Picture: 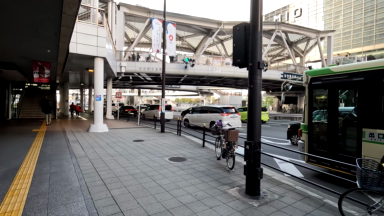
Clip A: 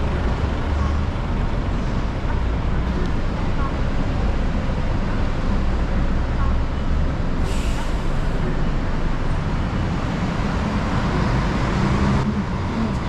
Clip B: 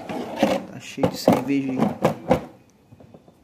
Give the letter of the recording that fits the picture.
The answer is A